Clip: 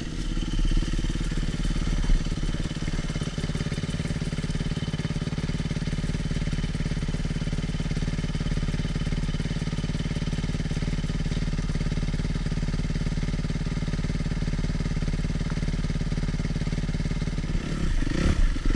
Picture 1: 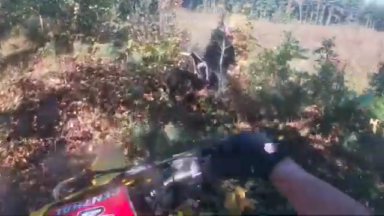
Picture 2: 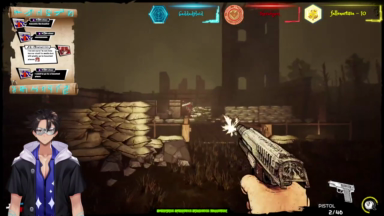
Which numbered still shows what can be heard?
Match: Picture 1